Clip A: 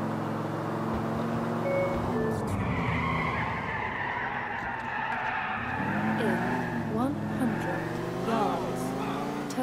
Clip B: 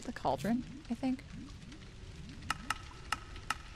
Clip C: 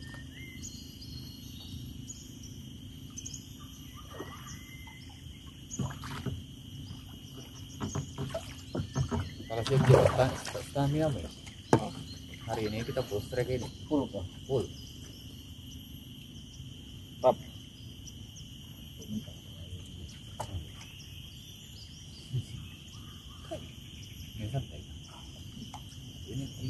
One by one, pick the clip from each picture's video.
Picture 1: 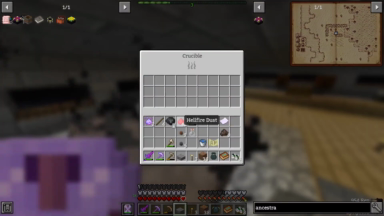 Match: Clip B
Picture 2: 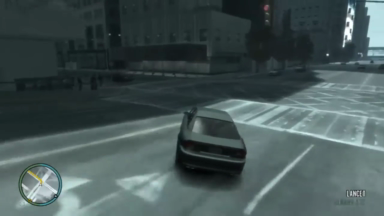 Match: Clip A